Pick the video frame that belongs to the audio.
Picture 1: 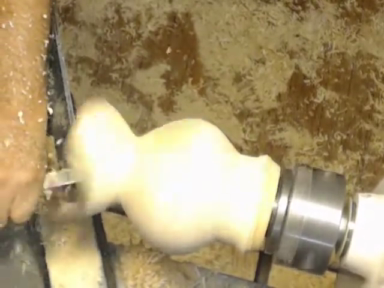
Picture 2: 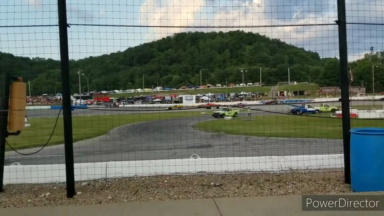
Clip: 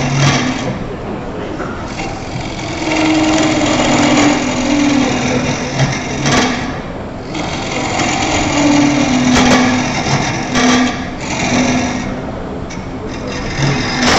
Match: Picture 1